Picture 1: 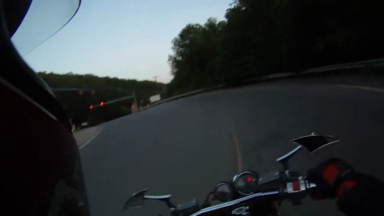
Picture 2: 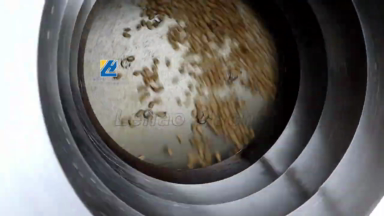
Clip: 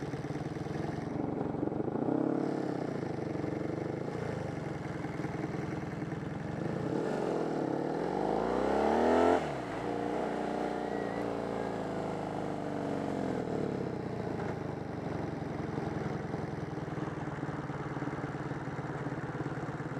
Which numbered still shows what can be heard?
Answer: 1